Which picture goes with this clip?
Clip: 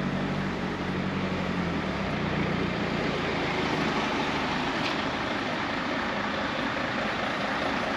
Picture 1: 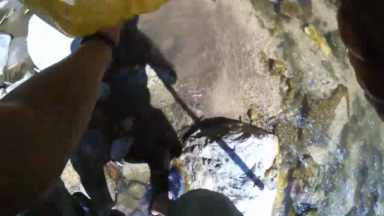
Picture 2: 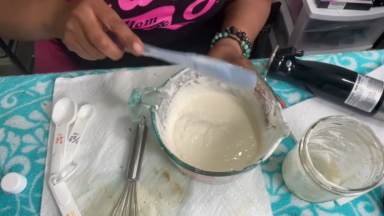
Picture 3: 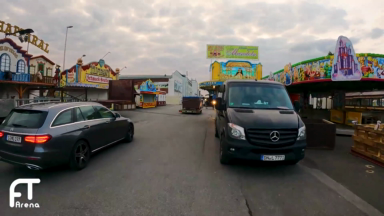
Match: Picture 3